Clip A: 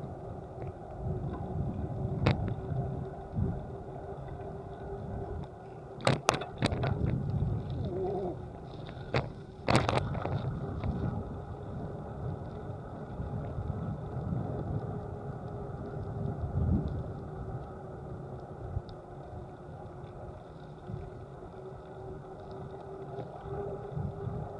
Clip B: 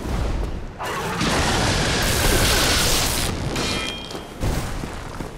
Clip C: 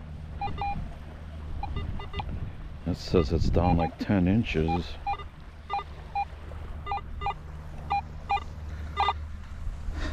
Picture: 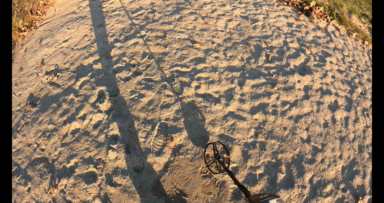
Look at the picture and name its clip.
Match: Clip C